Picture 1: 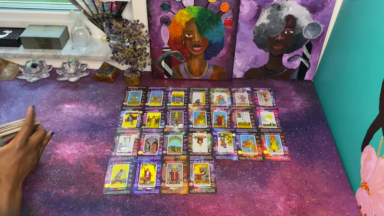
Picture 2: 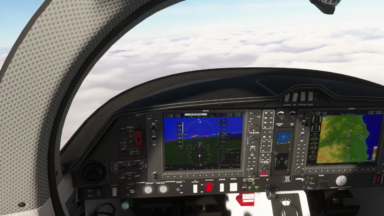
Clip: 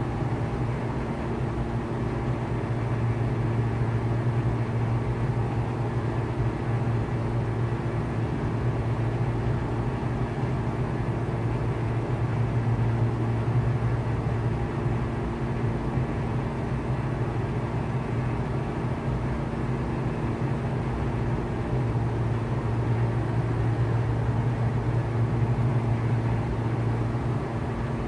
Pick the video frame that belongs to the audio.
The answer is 2